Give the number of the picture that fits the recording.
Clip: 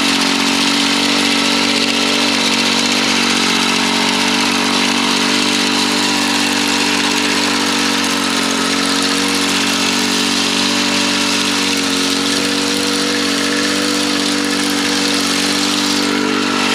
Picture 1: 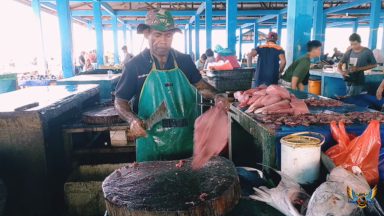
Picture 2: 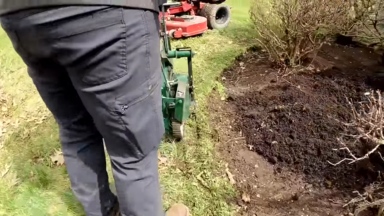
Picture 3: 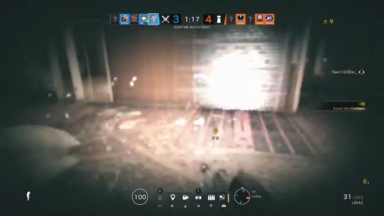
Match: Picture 2